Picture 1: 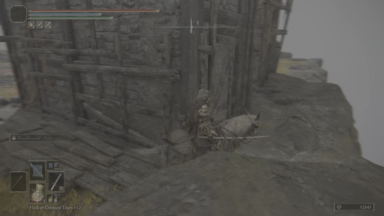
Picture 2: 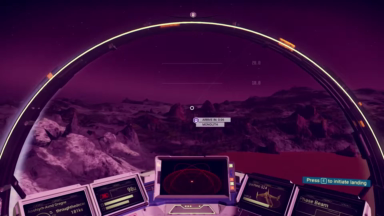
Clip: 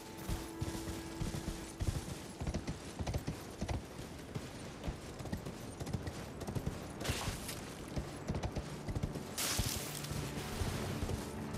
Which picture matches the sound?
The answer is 1